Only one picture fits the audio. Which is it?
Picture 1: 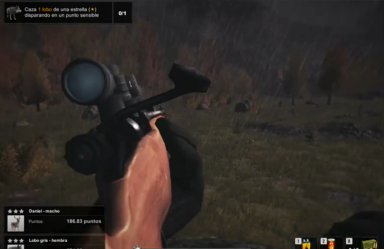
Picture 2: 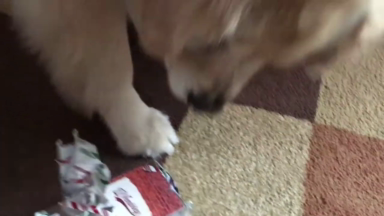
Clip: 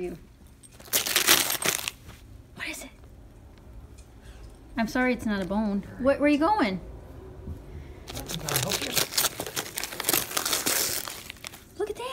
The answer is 2